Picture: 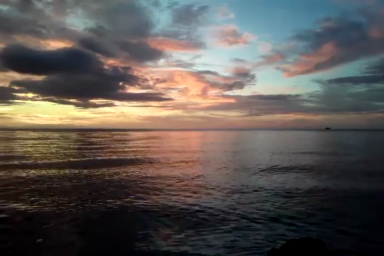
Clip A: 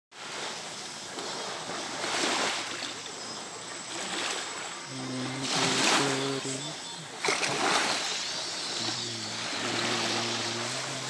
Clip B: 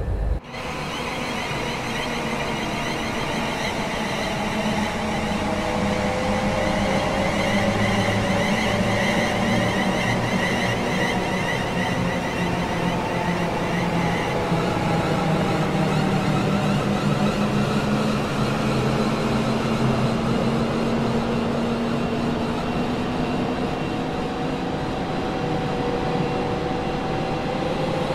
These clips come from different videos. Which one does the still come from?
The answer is A